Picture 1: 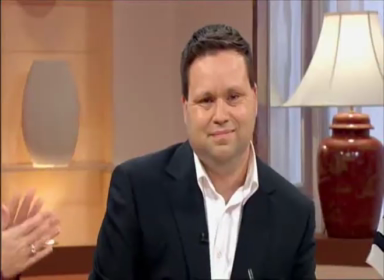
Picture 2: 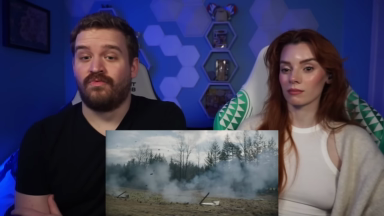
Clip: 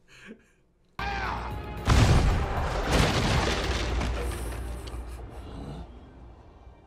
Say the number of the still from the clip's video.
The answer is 2